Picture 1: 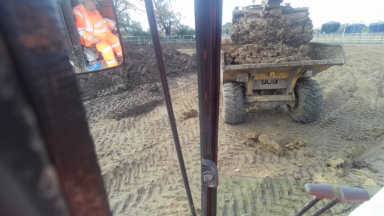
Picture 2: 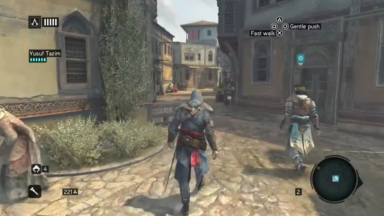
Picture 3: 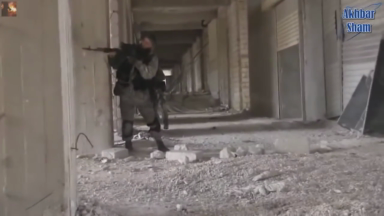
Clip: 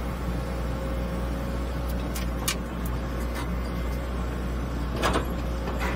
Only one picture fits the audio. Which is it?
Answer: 1